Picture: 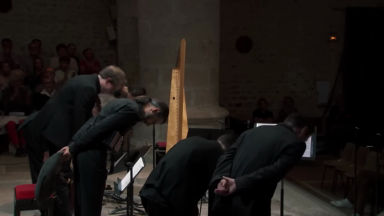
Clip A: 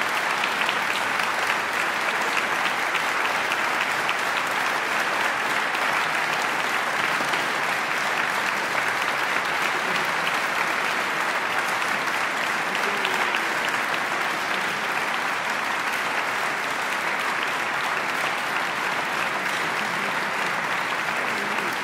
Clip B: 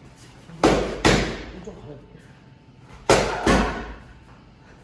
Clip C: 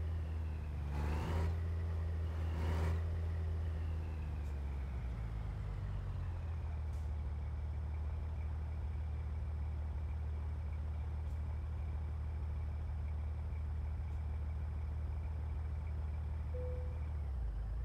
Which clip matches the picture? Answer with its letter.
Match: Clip A